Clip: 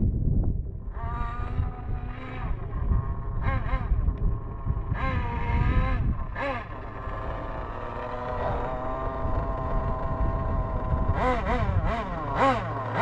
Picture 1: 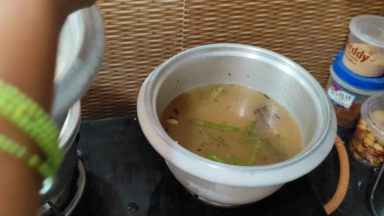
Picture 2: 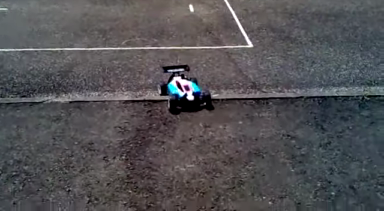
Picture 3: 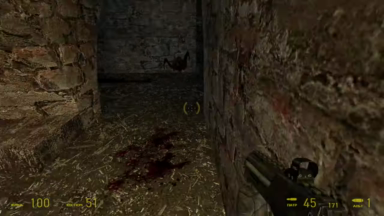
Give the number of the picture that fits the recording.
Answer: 2